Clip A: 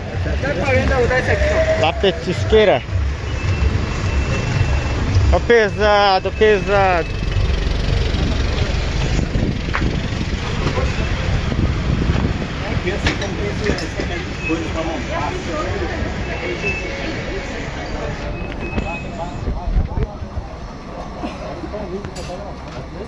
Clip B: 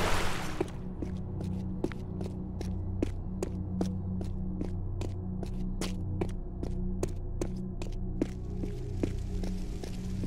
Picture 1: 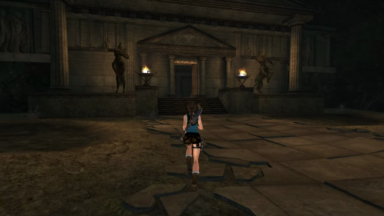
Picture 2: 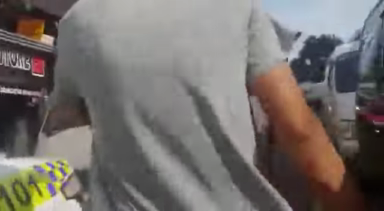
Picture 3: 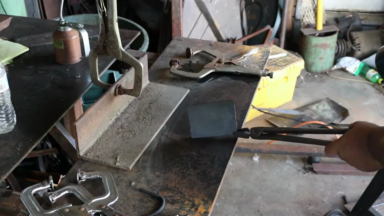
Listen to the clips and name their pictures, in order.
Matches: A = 2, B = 1